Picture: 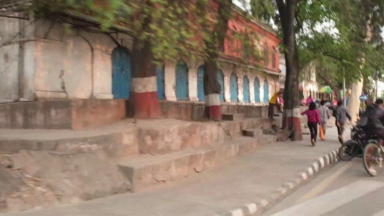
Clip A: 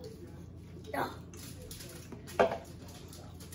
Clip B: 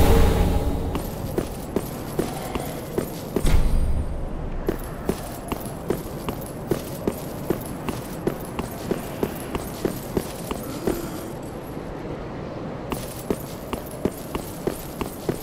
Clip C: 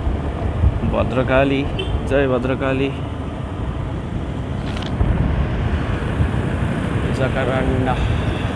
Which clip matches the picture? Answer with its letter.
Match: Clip C